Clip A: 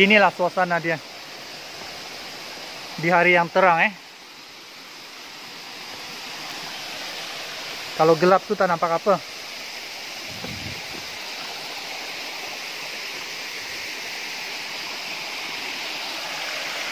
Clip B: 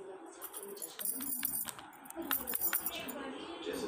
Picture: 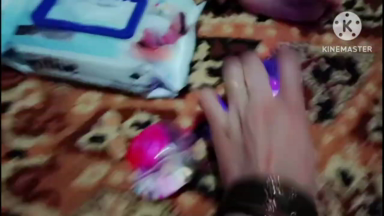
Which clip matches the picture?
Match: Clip B